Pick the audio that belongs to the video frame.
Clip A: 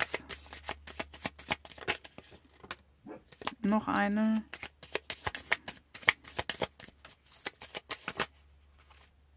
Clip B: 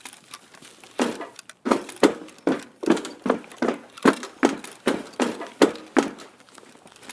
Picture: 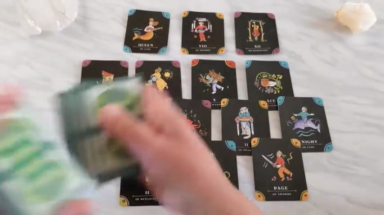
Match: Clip A